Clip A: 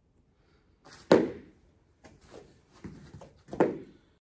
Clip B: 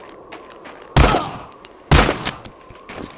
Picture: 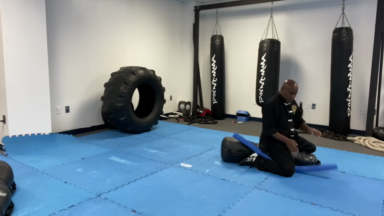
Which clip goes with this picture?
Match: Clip A